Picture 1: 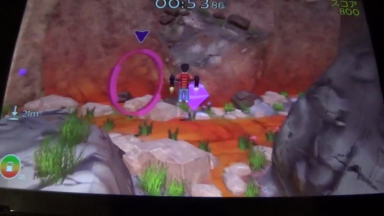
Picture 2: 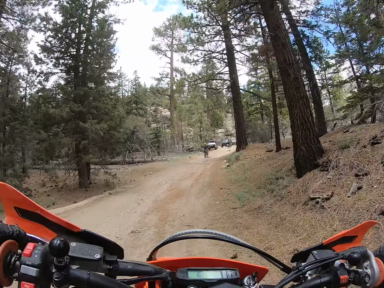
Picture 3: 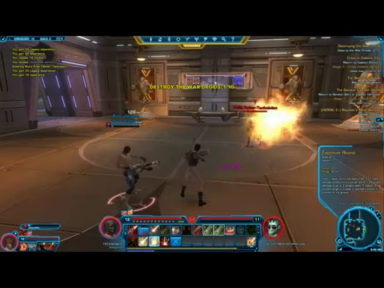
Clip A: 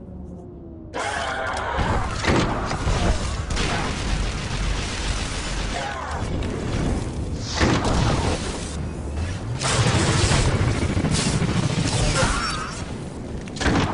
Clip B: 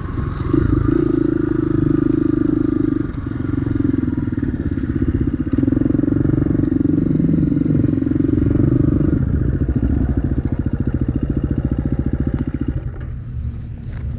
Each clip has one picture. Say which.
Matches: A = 3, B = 2